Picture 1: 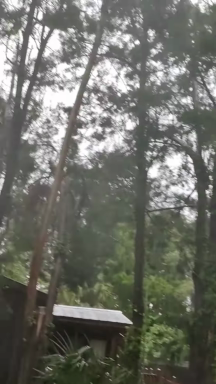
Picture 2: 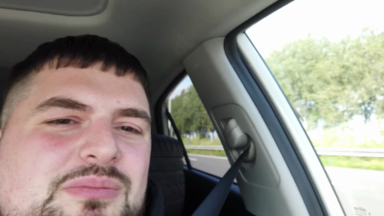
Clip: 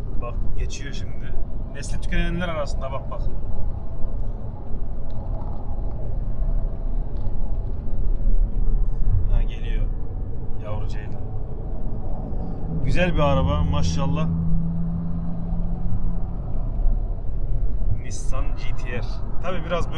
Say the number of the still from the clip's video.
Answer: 2